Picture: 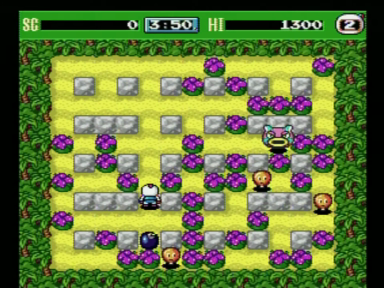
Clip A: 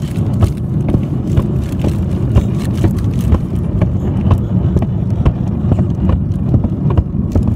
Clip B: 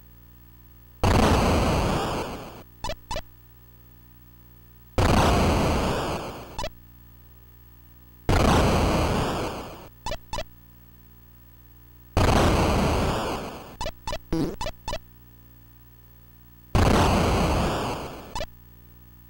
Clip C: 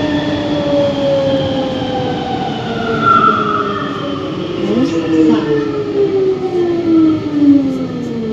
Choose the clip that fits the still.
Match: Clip B